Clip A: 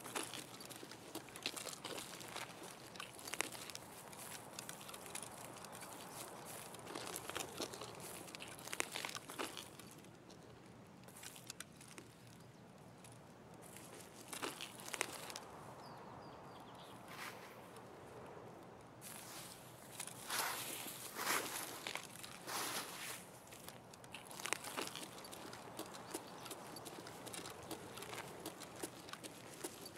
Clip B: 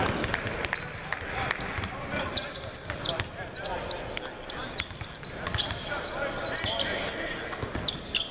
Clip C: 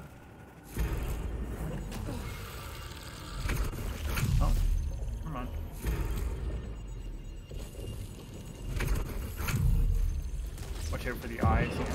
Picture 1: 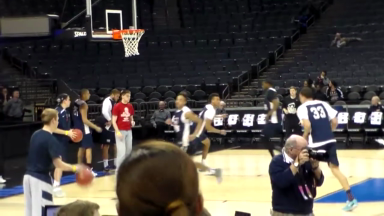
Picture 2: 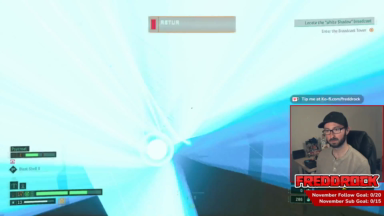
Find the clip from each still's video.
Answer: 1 B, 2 C